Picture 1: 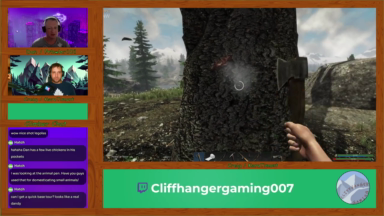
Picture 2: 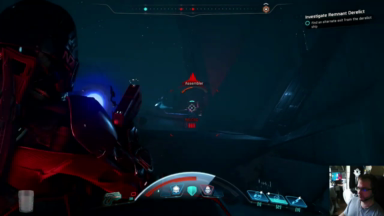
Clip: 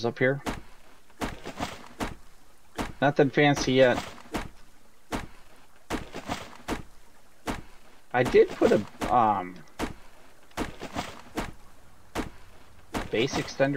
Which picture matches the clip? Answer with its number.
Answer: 1